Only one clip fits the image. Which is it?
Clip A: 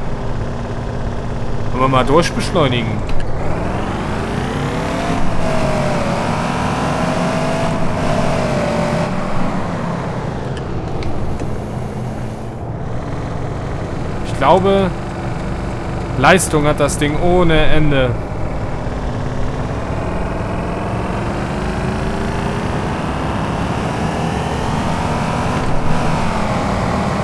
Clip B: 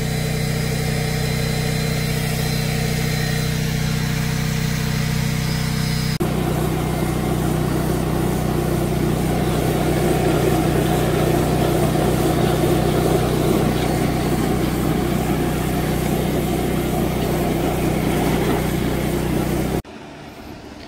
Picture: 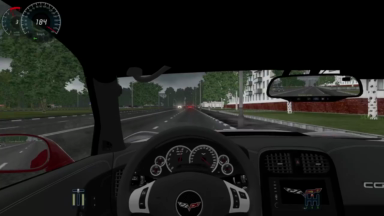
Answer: A